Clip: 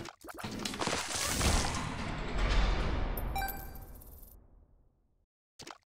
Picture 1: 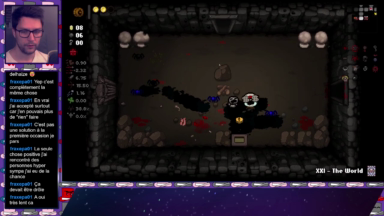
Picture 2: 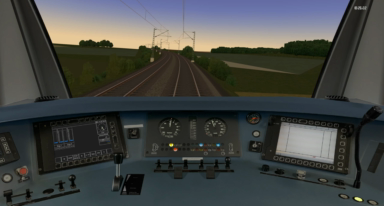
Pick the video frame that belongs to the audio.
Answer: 1